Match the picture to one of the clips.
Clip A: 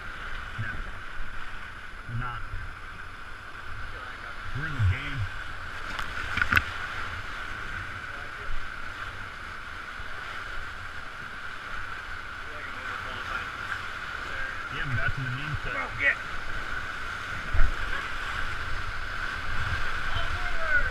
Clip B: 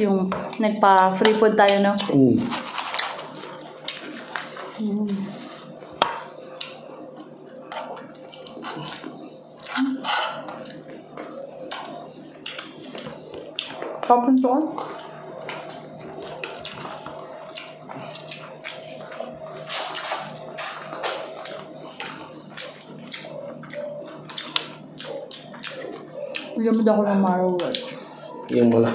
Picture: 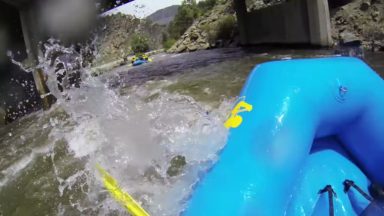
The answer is A